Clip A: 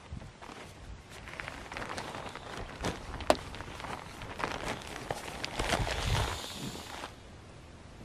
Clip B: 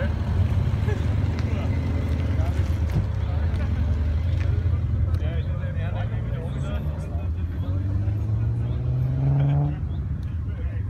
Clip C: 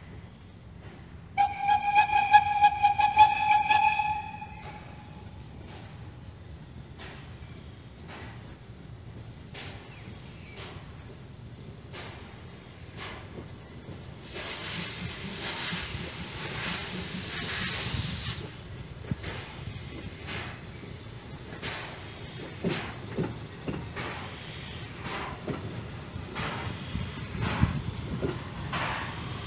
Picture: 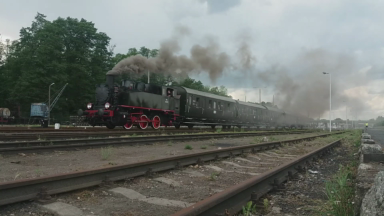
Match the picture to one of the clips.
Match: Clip C